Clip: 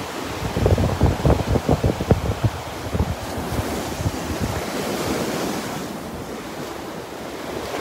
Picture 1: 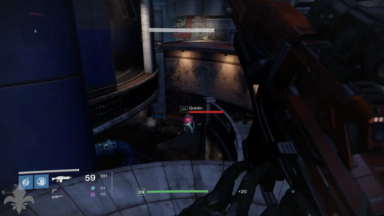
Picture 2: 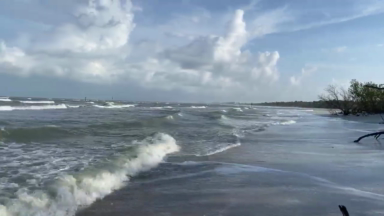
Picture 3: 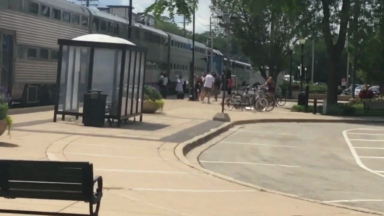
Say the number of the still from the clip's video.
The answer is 2